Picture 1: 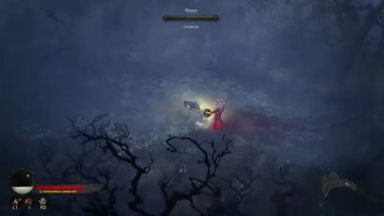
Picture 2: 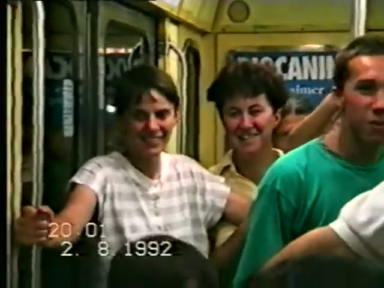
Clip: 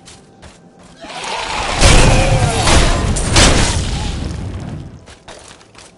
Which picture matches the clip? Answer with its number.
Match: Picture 1